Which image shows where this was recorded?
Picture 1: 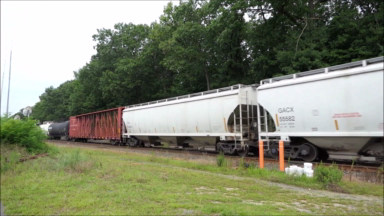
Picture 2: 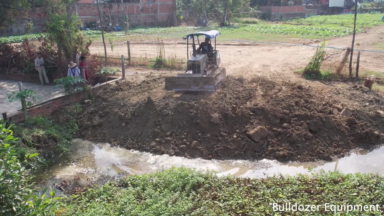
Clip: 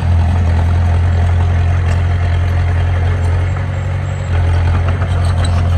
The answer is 2